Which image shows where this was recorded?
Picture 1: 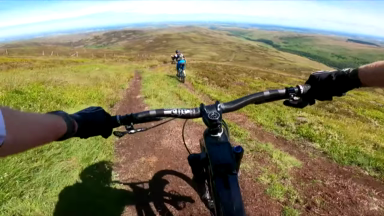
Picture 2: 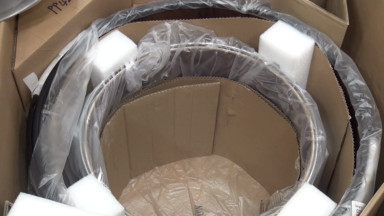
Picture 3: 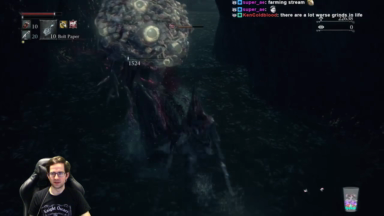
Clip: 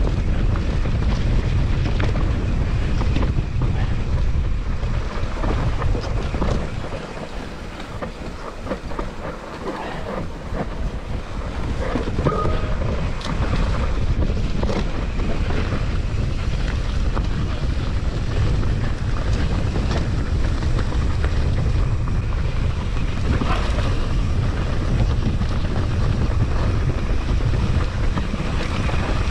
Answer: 1